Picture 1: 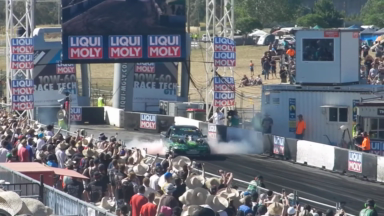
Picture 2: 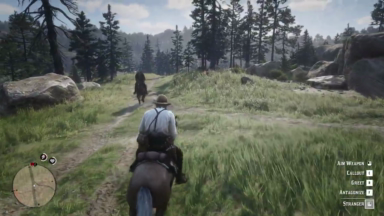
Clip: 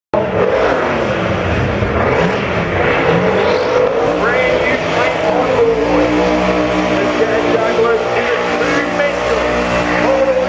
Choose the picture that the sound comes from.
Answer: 1